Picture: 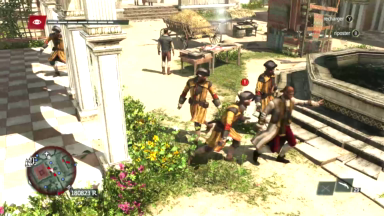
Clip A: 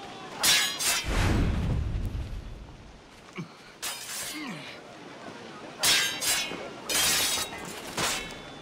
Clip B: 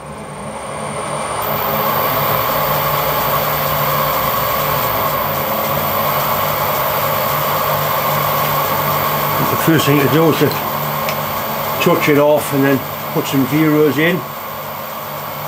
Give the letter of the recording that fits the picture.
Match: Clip A